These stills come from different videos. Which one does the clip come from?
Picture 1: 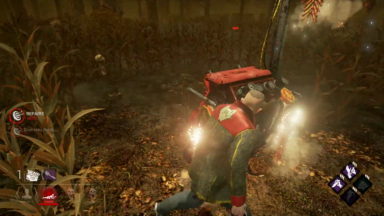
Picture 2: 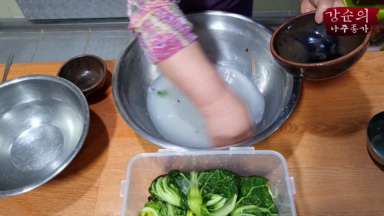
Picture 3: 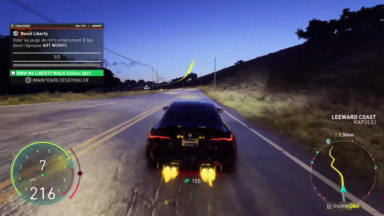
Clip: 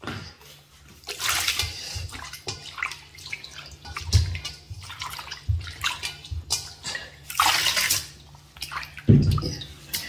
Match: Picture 2